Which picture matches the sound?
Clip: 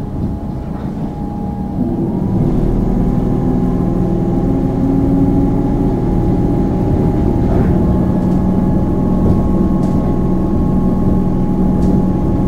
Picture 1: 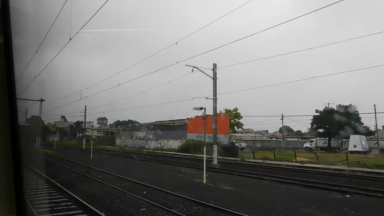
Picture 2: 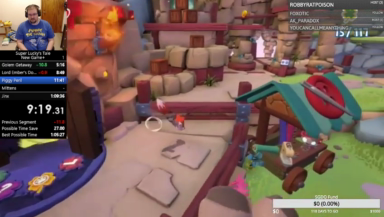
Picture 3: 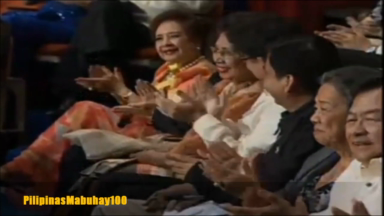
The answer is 1